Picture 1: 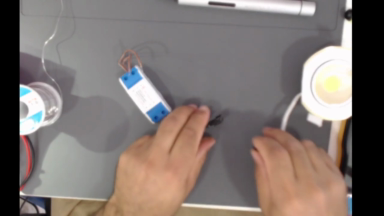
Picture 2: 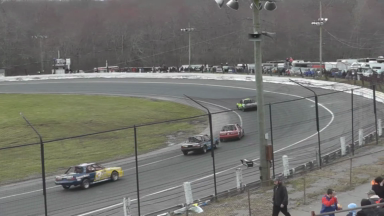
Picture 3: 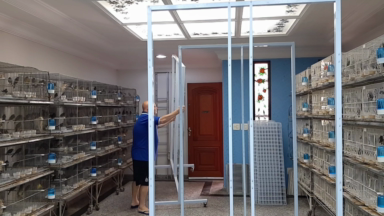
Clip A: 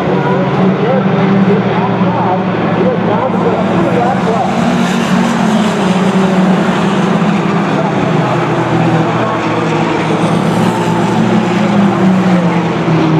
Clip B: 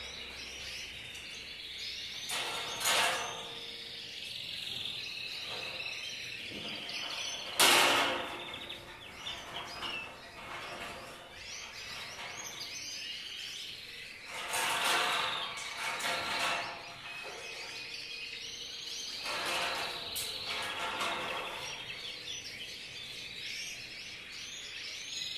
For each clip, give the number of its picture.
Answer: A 2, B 3